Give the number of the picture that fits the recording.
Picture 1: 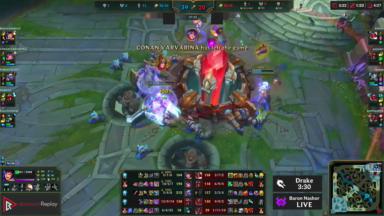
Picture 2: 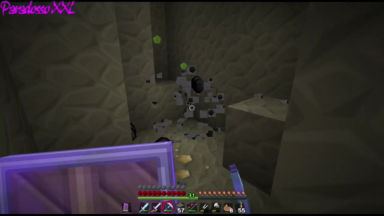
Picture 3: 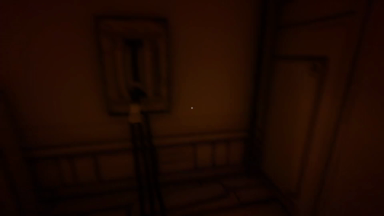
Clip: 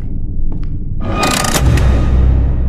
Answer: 3